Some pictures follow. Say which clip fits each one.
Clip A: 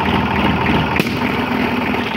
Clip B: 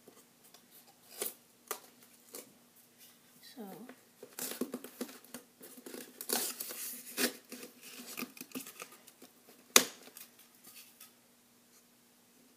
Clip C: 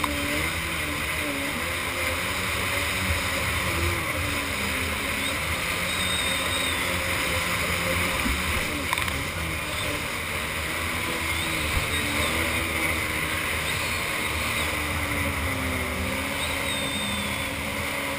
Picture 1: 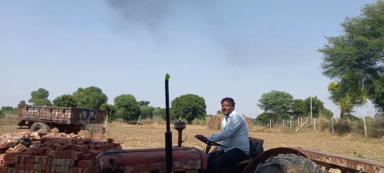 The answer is A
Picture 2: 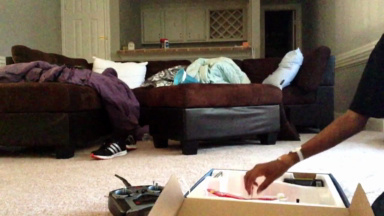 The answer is B